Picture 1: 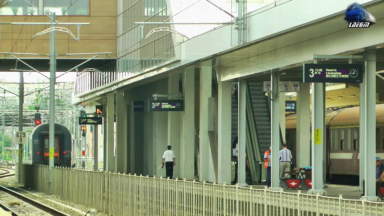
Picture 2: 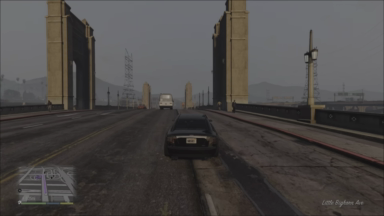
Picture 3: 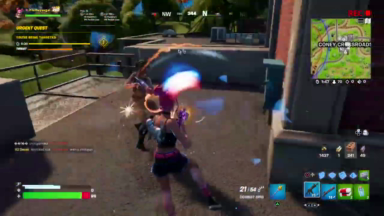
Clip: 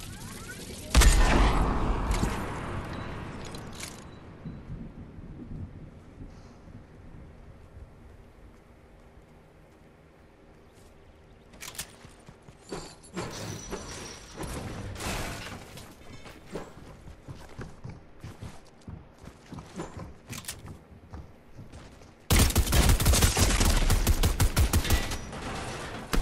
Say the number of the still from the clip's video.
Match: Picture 3